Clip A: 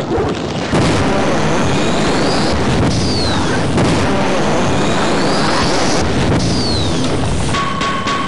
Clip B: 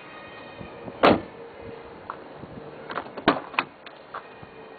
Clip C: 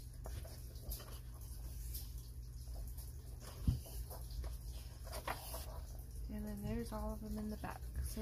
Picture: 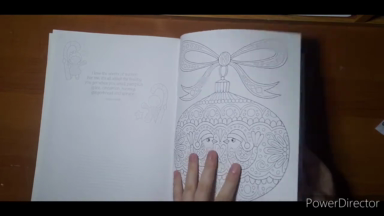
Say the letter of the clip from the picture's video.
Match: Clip C